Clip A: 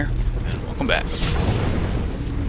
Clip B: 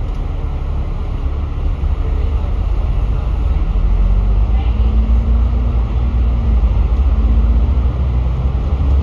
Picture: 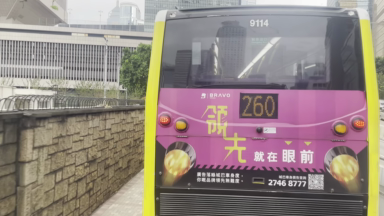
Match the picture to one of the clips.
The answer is B